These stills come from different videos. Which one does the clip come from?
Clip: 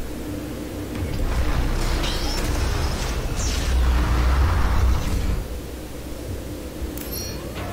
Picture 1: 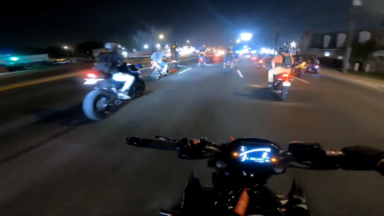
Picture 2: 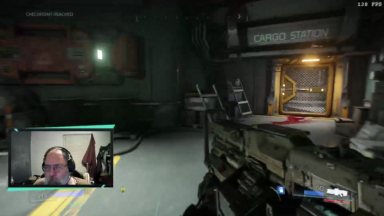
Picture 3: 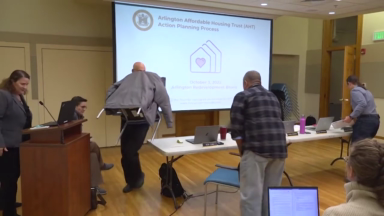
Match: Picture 2